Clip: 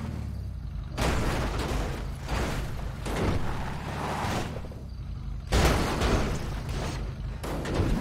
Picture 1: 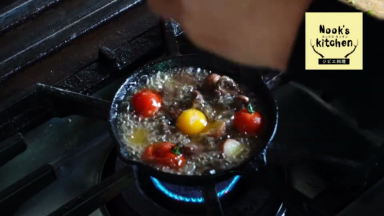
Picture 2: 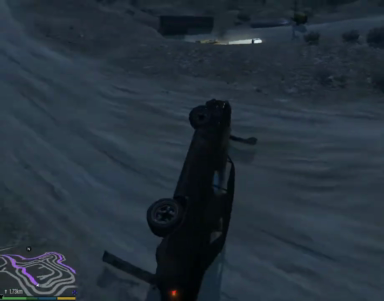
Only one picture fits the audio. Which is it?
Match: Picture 2